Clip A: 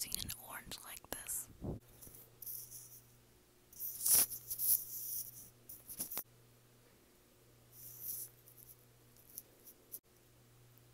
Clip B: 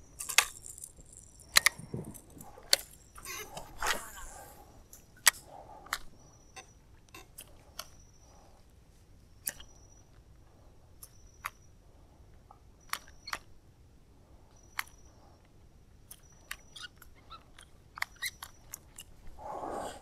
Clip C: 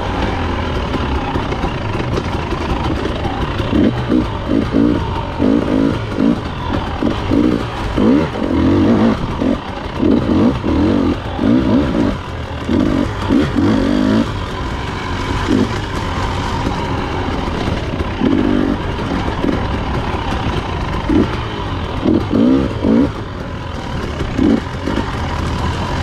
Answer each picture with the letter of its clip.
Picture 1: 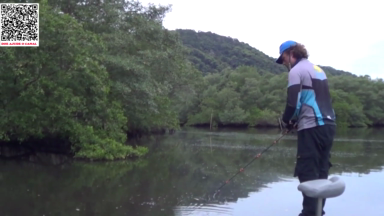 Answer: B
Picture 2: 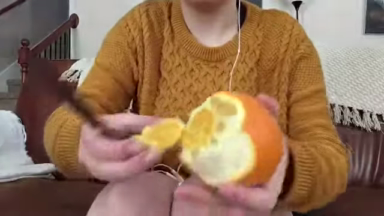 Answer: A